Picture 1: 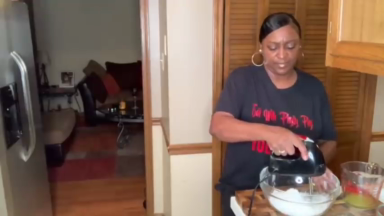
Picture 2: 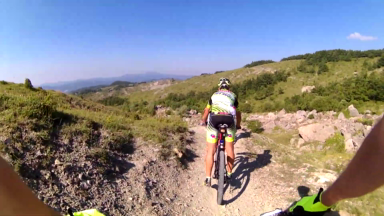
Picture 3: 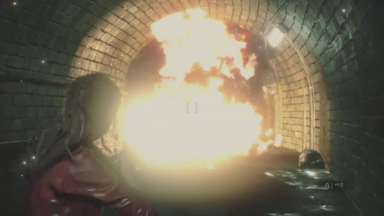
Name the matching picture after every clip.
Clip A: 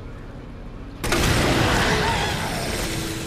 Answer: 3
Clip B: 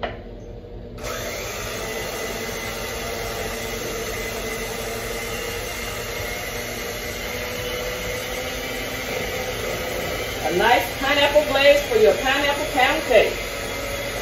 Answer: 1